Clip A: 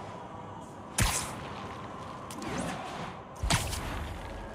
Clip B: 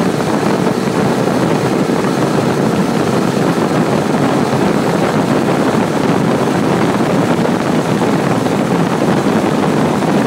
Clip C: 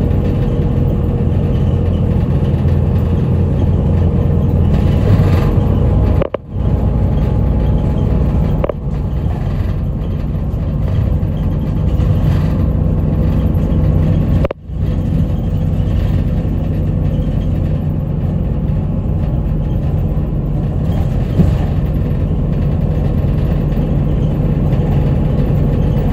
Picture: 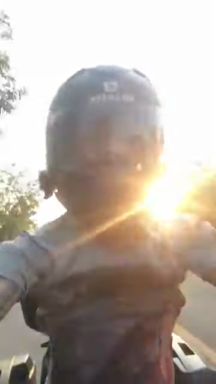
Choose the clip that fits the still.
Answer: B